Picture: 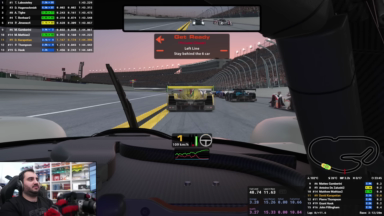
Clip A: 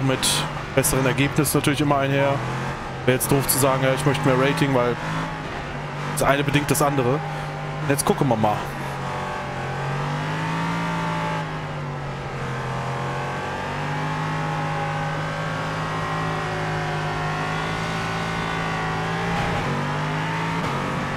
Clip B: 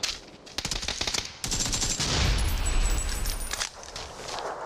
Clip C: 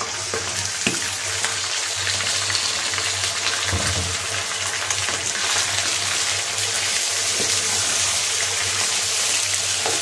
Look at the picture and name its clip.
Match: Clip A